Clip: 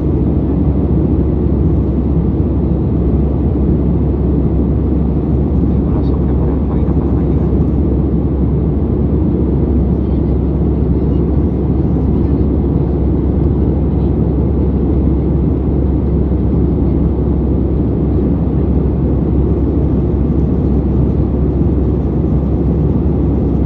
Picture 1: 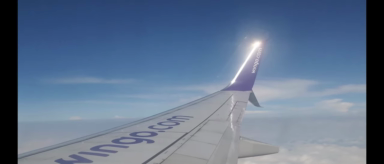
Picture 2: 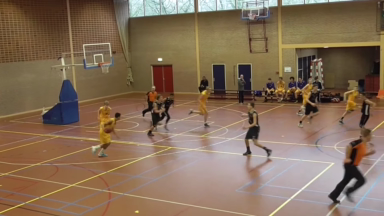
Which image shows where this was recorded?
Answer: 1